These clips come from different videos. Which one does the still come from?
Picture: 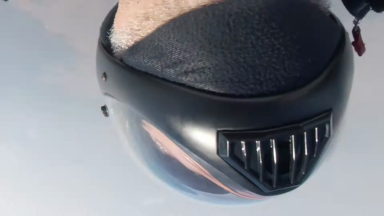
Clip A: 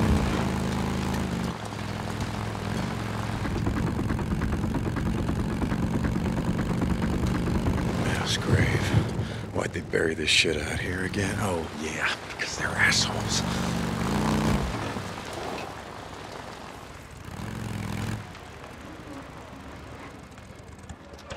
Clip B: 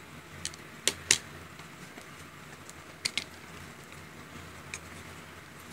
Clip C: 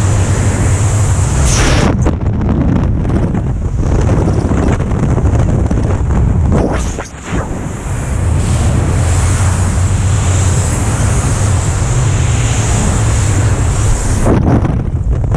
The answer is C